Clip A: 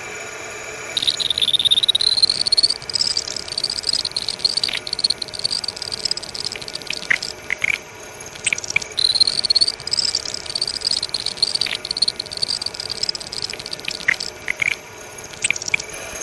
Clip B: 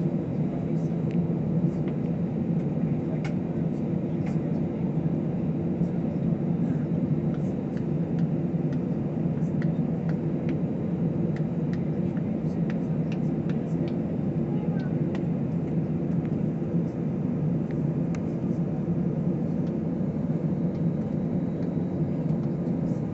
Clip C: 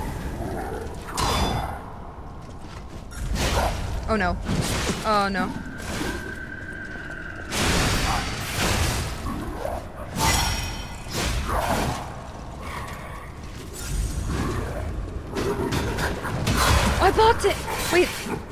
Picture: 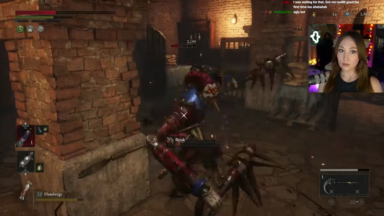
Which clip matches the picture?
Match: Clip C